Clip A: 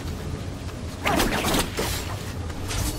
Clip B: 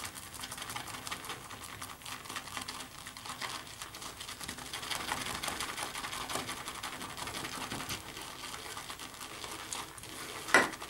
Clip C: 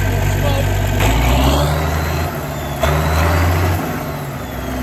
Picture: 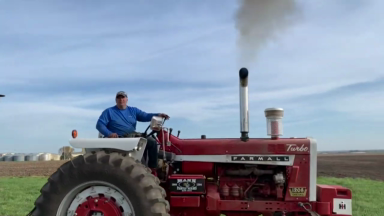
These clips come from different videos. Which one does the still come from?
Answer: C